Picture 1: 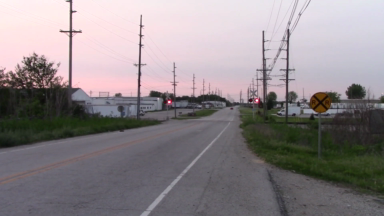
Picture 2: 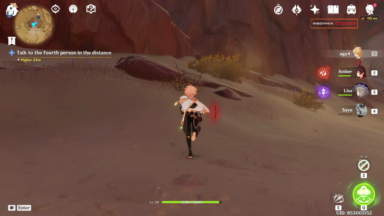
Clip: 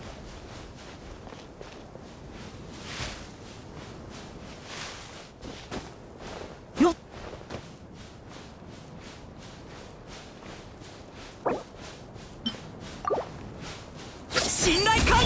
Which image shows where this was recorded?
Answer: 2